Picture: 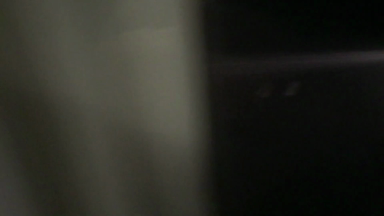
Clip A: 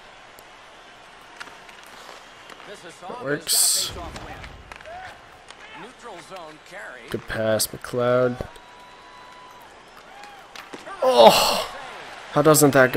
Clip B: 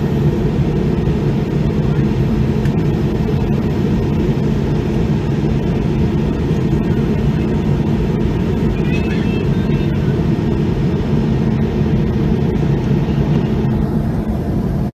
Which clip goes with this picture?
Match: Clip B